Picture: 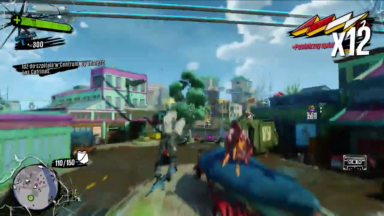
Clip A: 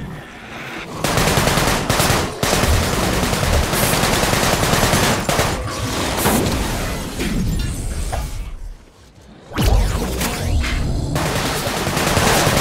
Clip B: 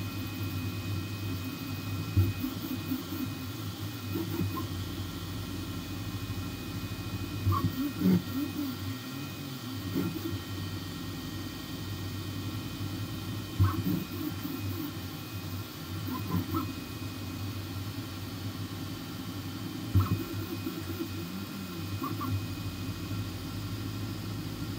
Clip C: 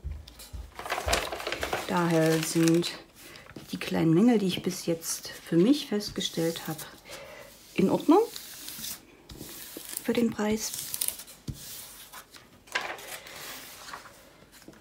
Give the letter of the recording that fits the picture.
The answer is A